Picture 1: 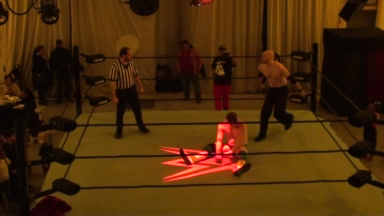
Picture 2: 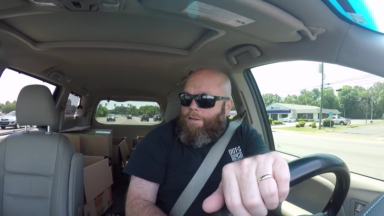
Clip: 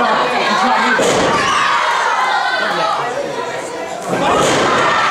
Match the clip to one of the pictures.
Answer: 1